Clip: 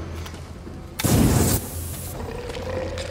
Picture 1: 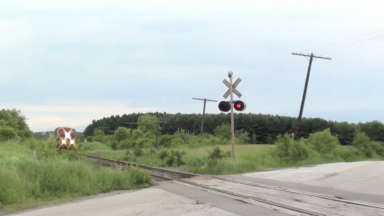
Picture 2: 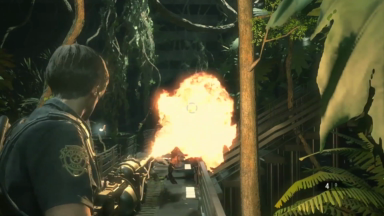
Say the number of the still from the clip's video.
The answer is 2